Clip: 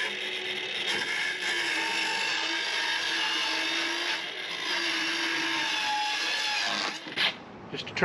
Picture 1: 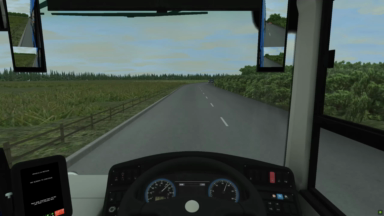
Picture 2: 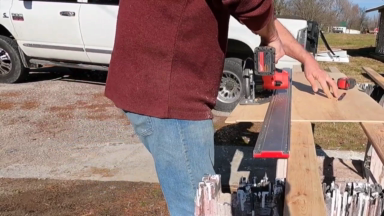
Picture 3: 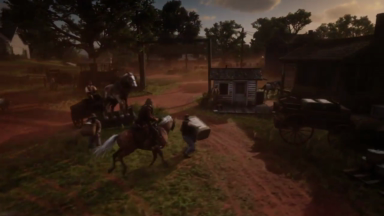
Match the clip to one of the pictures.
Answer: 2